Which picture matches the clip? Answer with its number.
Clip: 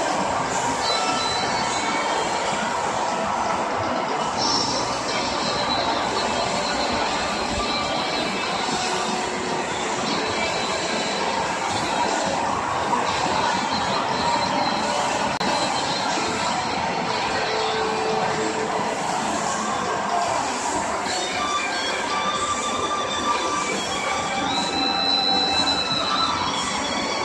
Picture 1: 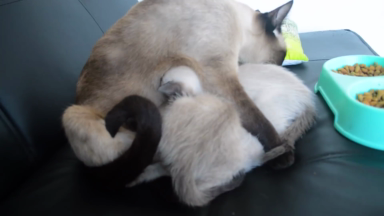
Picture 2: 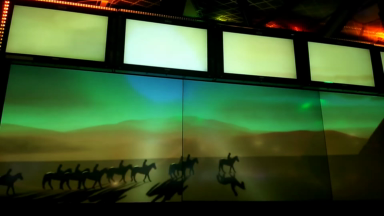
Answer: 2